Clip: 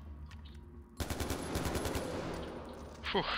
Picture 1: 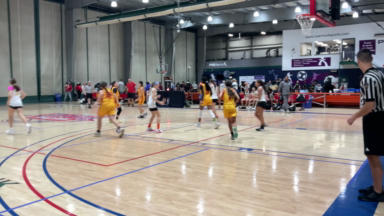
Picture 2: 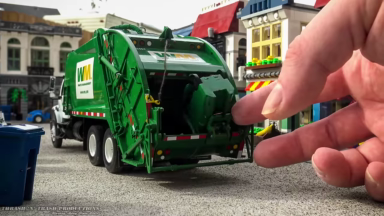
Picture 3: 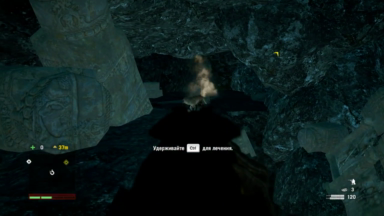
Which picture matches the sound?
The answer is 3